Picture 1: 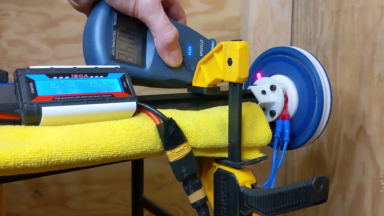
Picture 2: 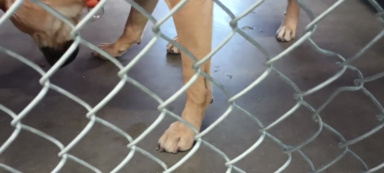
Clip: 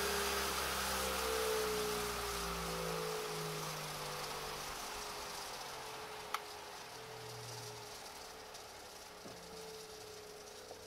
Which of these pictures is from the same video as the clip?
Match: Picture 1